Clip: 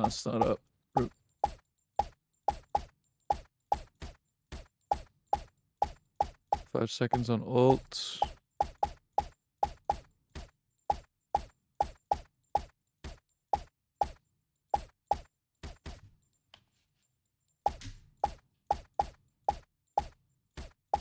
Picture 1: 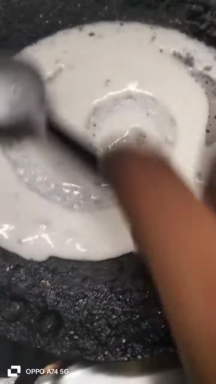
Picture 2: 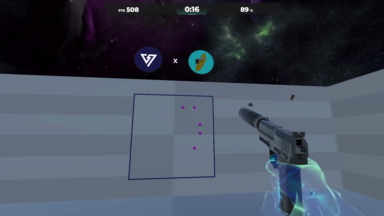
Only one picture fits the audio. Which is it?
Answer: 2